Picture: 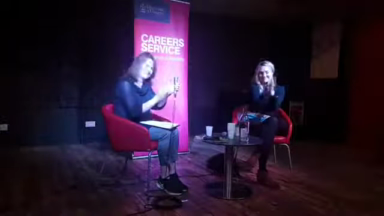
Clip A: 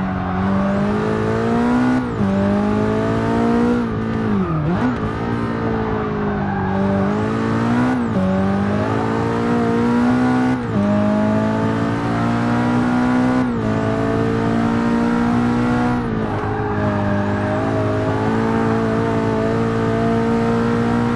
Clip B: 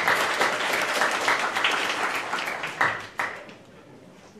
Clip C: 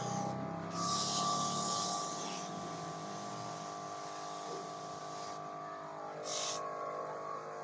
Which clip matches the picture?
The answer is B